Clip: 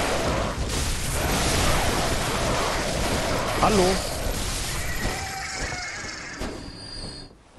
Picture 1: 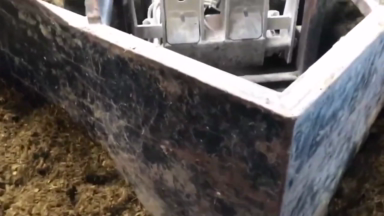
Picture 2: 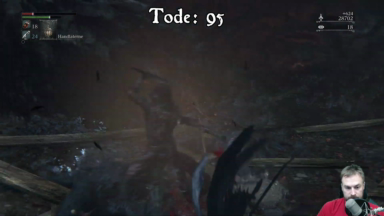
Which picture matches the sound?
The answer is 2